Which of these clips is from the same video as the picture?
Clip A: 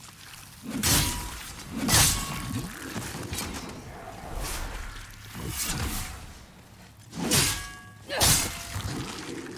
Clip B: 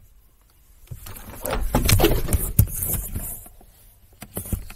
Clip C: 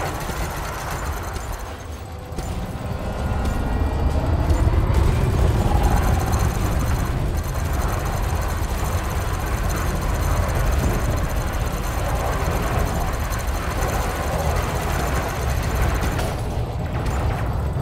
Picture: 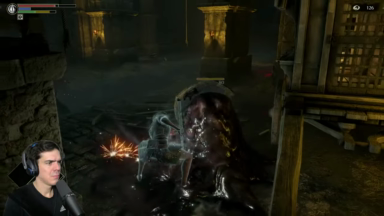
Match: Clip A